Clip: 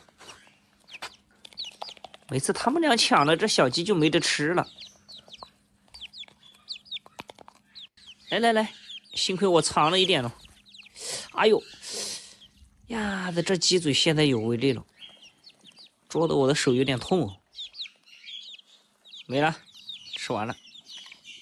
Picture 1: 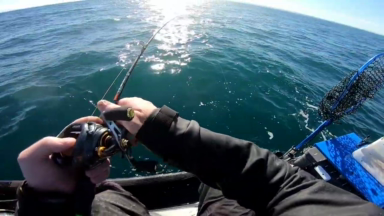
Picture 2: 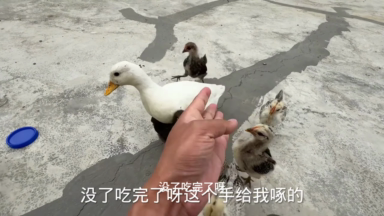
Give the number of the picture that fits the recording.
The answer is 2